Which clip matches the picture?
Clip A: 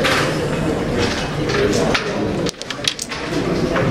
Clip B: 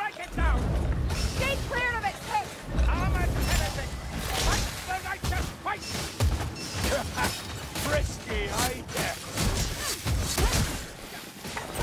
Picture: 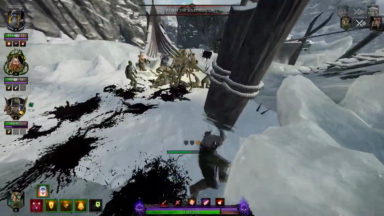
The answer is B